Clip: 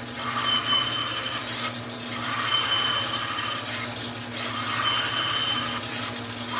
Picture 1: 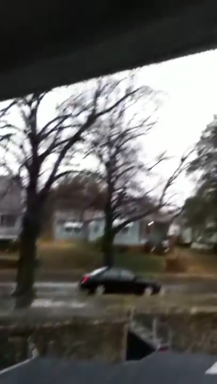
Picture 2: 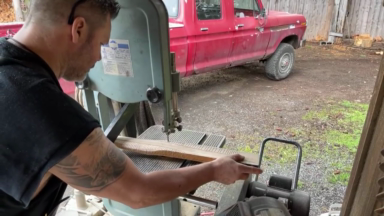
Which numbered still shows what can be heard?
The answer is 2